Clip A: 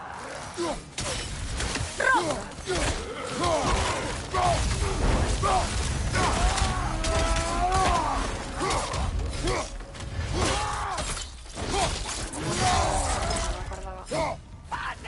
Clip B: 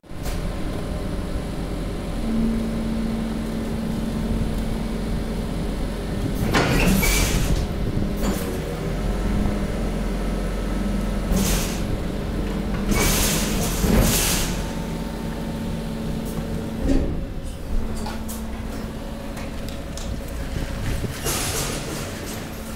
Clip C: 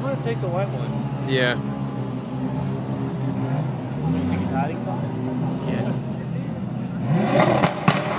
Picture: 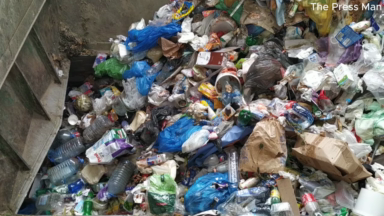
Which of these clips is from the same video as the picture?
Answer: B